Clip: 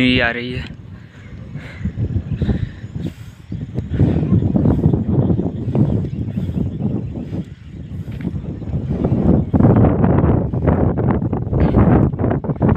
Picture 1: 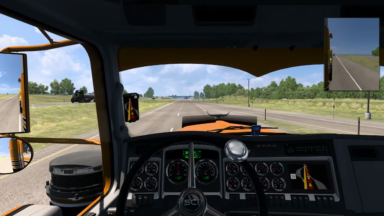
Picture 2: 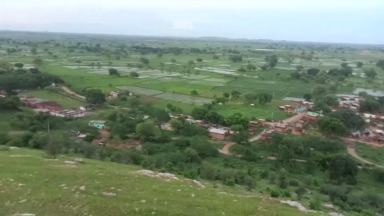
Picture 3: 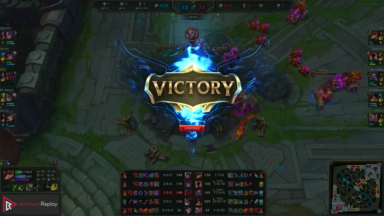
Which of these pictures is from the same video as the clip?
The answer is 2